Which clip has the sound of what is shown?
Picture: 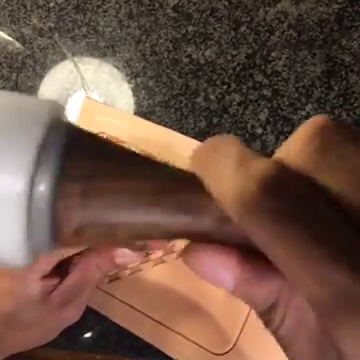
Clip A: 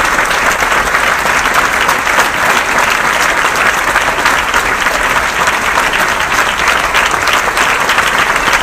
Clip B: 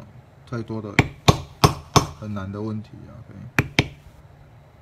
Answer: B